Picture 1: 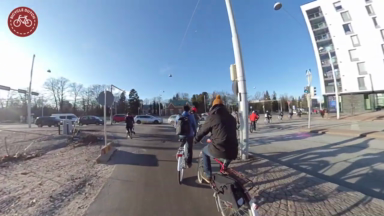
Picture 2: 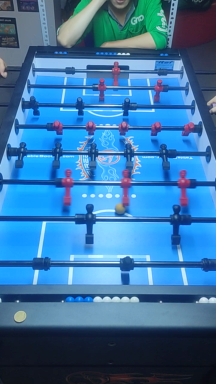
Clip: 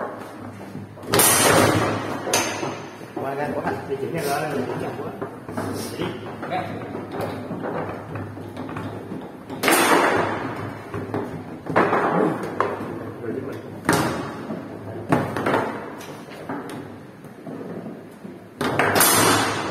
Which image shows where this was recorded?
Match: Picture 2